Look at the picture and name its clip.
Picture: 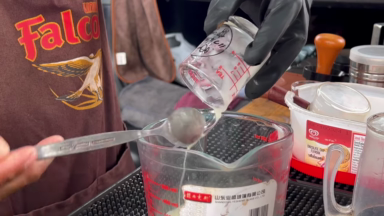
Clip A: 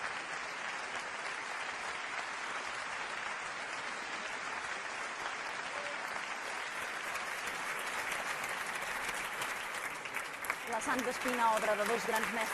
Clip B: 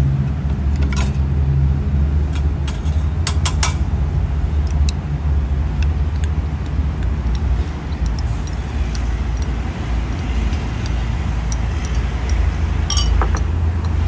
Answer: B